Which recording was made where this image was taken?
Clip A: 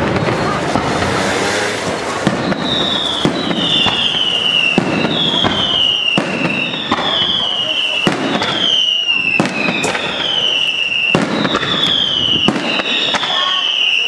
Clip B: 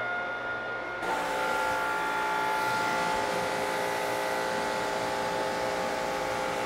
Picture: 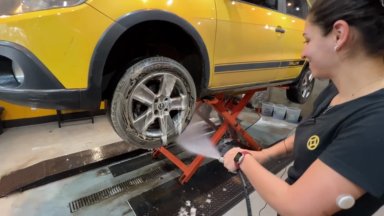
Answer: B